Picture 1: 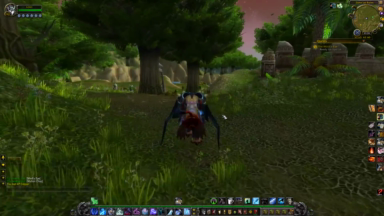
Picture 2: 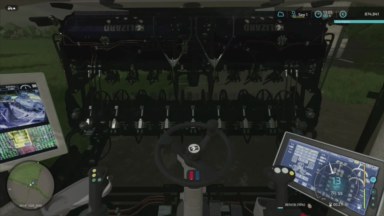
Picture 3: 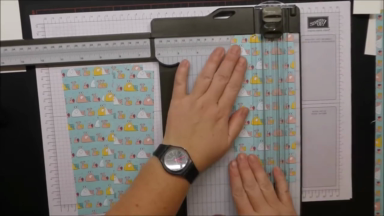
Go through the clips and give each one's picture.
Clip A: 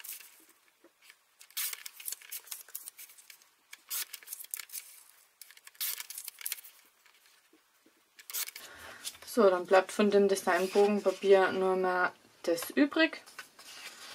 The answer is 3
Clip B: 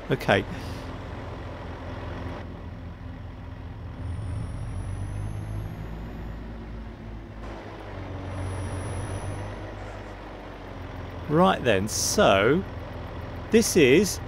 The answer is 2